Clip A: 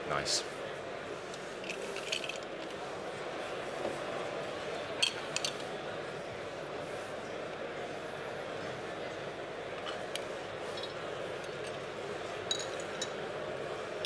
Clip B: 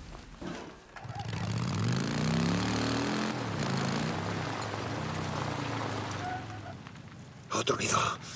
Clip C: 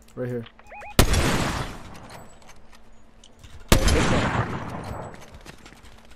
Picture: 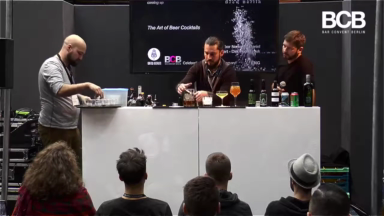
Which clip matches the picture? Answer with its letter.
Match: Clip A